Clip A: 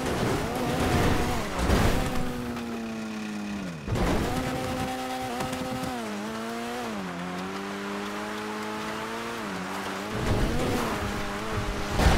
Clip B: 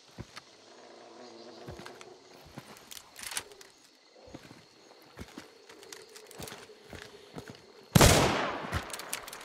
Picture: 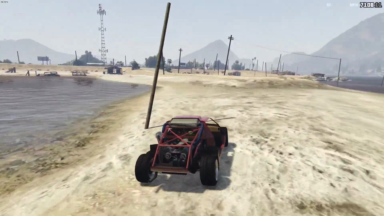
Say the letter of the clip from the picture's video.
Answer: A